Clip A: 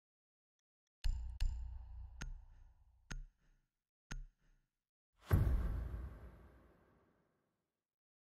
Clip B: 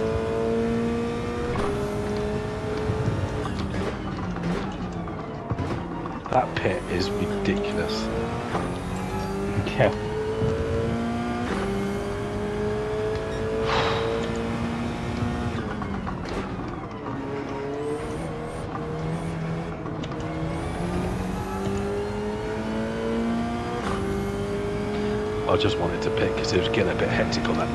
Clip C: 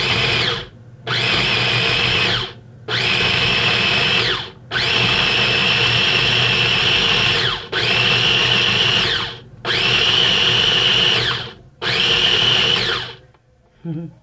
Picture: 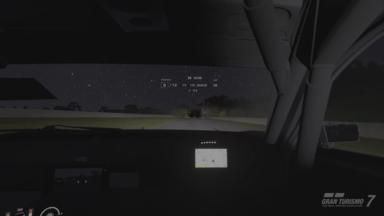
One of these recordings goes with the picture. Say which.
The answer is B